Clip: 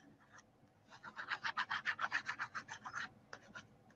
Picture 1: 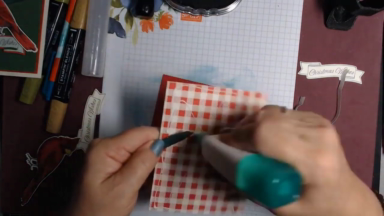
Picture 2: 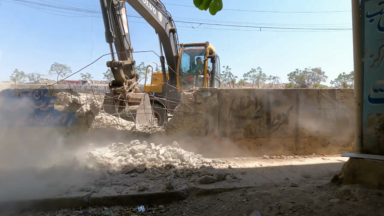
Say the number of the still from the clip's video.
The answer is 1